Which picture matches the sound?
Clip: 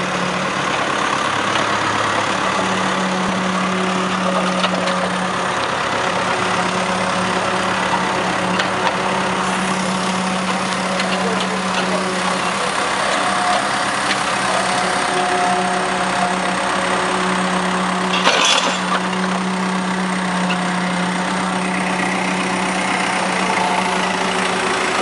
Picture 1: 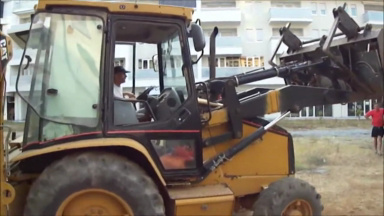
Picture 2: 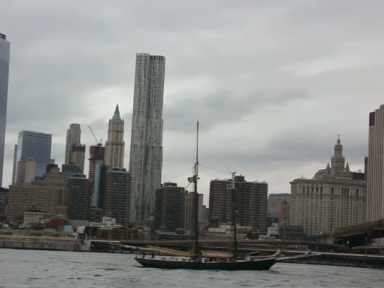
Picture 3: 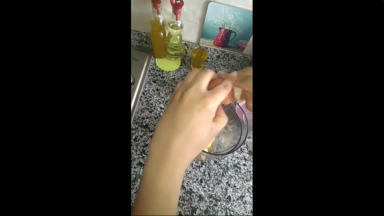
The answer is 1